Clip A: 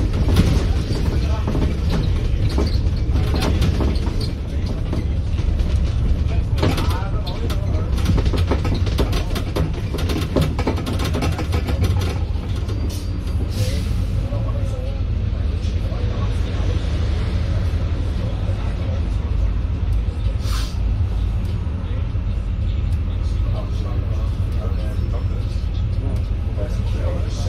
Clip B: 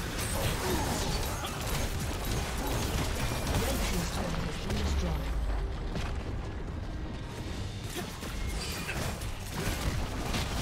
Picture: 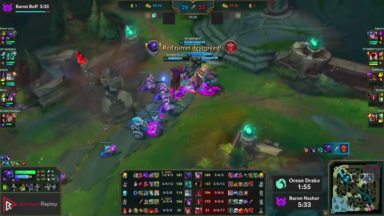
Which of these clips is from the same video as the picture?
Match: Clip B